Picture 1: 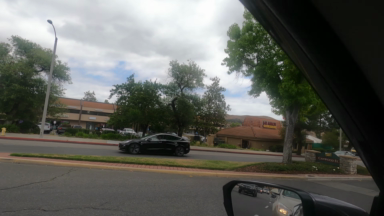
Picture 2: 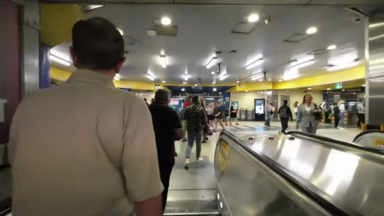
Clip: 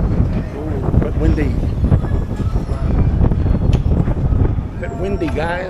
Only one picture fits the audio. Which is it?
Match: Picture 2